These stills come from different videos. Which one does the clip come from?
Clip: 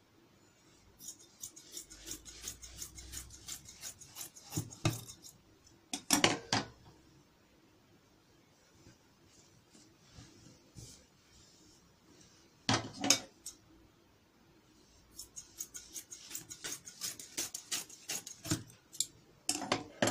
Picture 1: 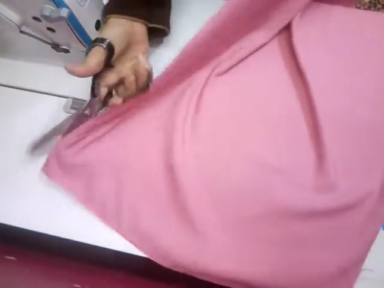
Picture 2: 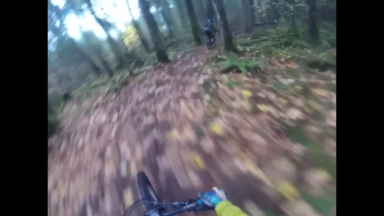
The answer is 1